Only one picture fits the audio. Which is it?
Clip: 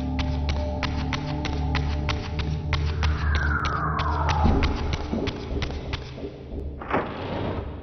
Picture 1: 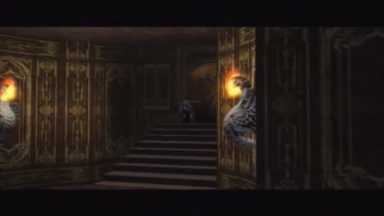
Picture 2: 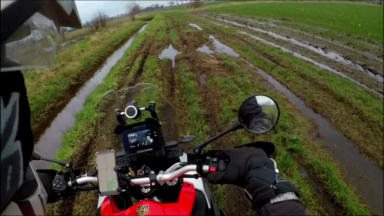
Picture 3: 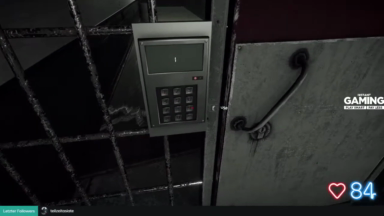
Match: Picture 1